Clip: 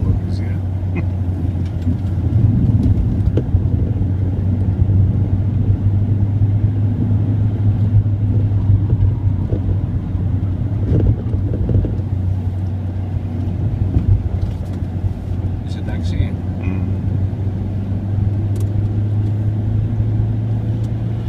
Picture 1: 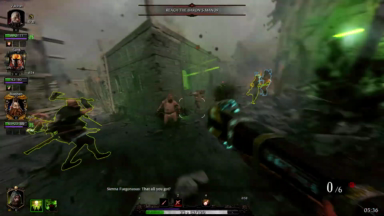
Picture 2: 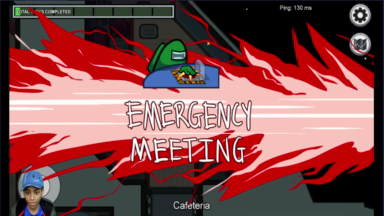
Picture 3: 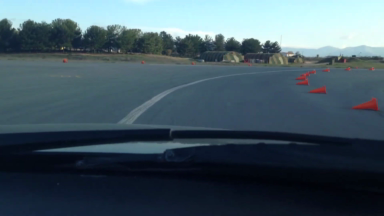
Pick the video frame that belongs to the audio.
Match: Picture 3